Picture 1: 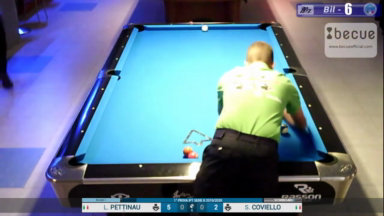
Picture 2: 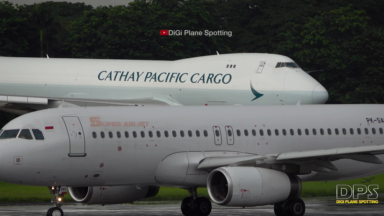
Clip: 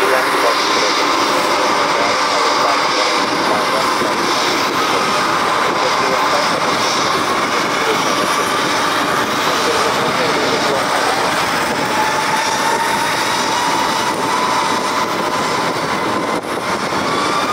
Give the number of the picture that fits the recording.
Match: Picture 2